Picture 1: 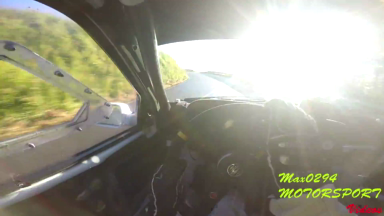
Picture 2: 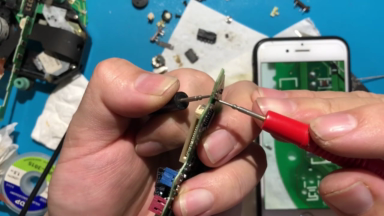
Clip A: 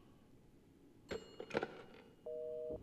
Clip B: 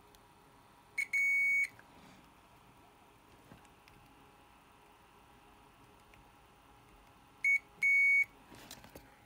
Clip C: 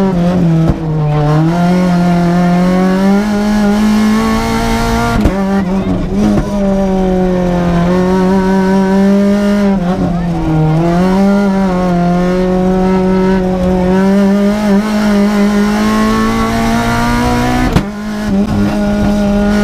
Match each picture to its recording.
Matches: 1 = C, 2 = B